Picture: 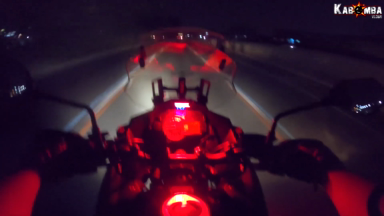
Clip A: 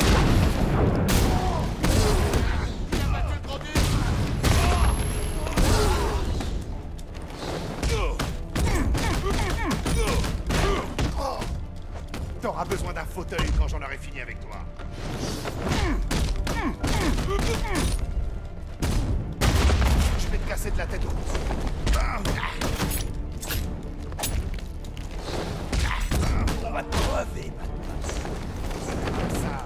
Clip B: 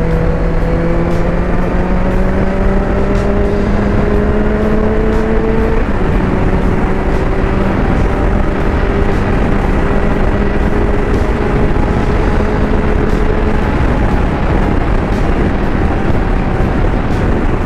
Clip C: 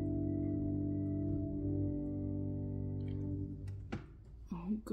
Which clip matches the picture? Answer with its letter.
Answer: B